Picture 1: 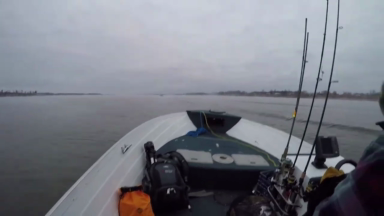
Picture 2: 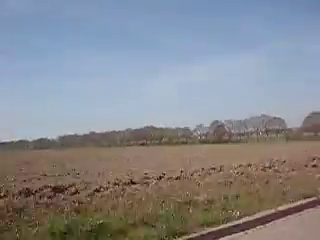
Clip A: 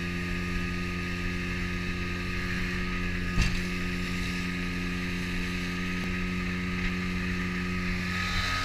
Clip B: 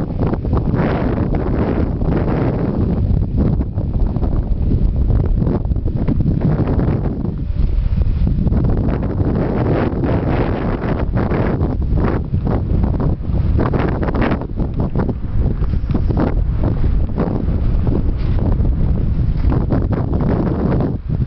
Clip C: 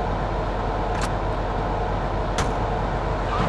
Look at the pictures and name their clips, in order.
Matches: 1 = A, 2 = B